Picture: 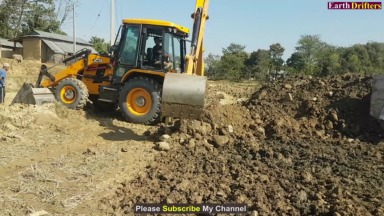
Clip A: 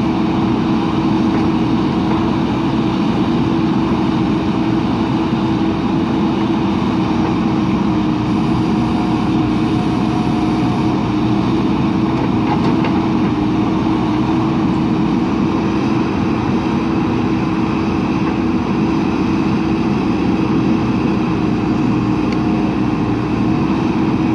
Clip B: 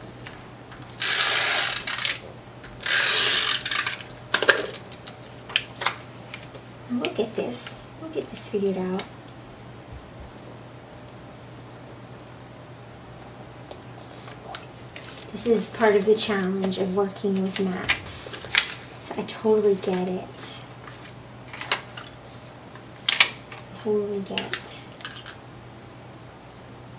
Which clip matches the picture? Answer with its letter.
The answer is A